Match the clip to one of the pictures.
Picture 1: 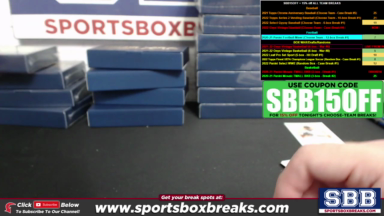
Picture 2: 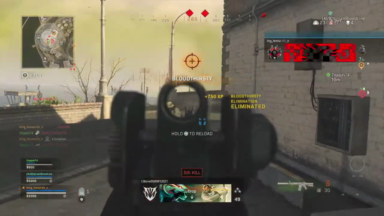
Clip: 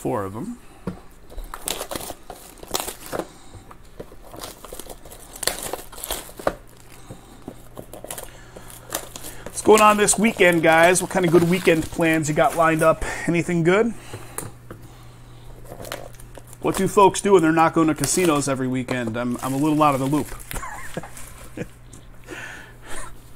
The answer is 1